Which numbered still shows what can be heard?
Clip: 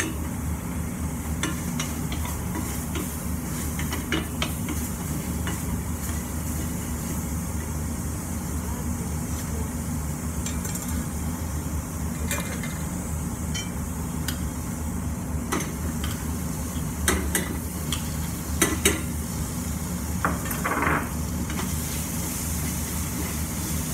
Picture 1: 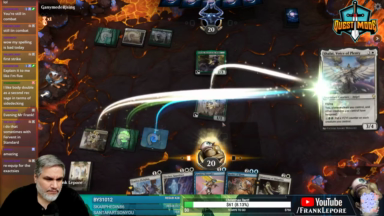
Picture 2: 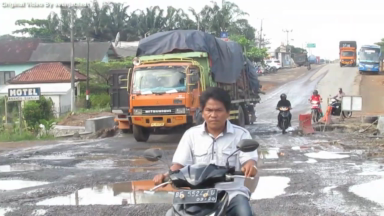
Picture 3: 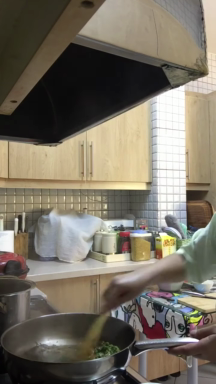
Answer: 3